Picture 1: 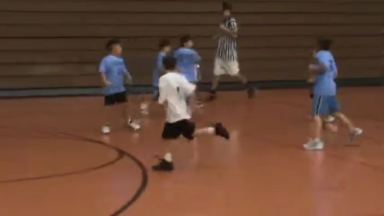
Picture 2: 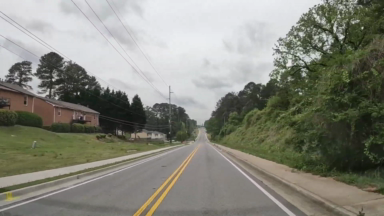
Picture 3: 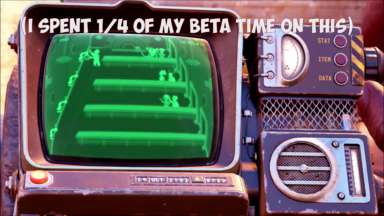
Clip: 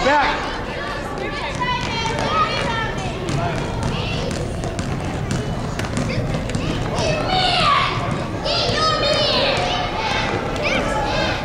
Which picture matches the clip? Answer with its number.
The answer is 1